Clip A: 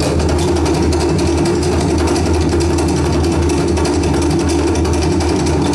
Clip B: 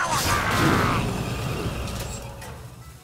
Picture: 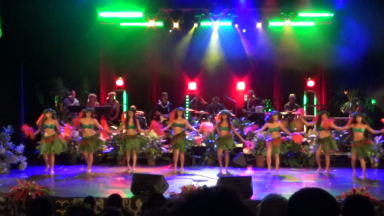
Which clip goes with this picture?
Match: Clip A